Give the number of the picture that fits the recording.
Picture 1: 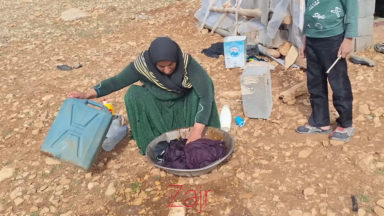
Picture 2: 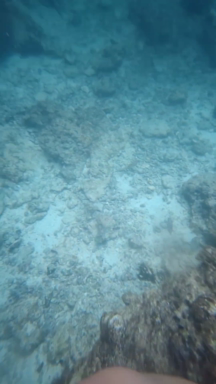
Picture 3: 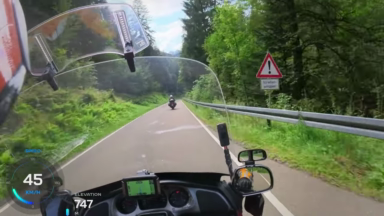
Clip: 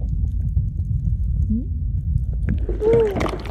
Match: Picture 2